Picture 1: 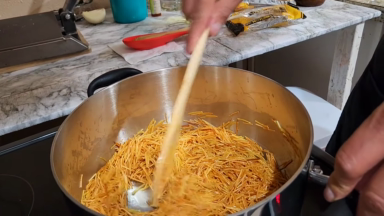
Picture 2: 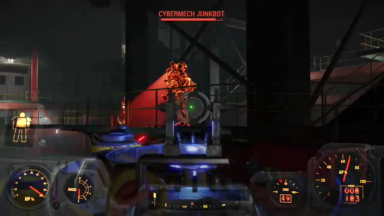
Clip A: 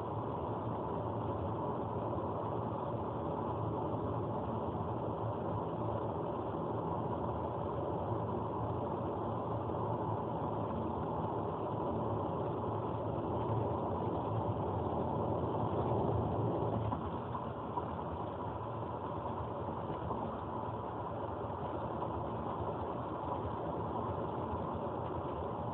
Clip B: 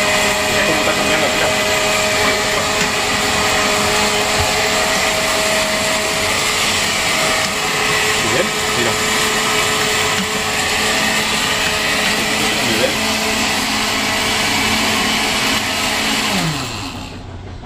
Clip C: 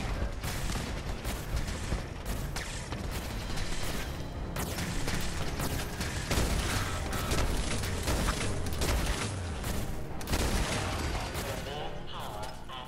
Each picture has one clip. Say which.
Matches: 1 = B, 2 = C